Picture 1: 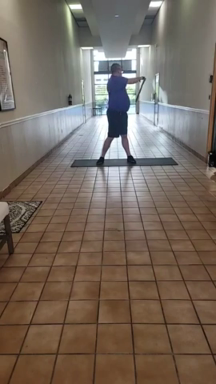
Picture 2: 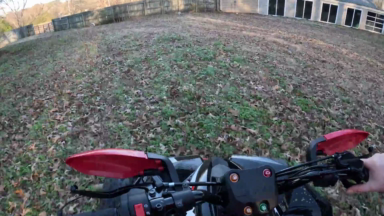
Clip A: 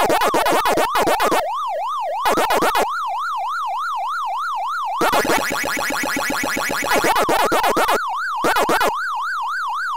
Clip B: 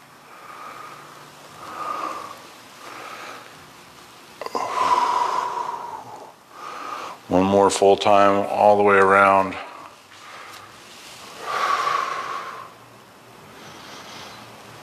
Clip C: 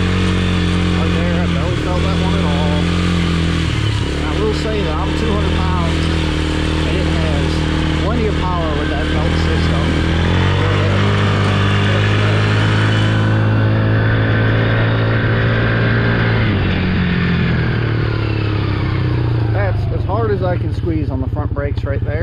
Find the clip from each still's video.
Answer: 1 B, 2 C